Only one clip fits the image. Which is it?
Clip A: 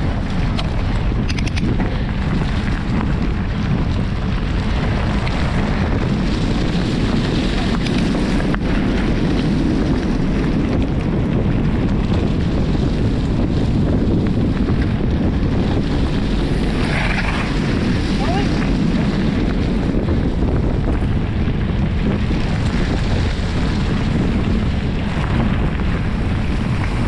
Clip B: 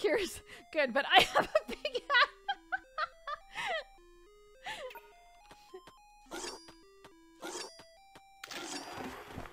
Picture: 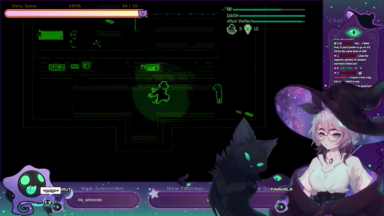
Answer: B